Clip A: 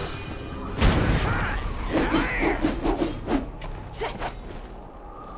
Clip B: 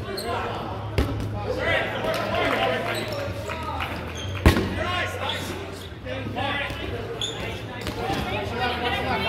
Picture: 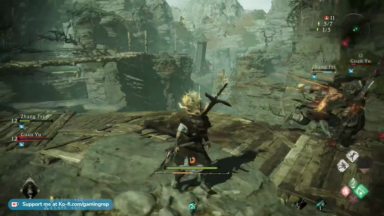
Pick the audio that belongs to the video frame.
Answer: A